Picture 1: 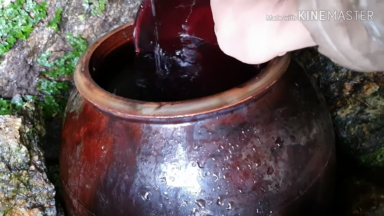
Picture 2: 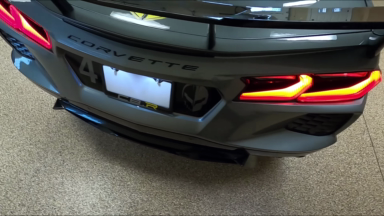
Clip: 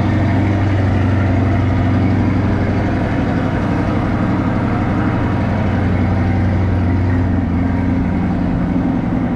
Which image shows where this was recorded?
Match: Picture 2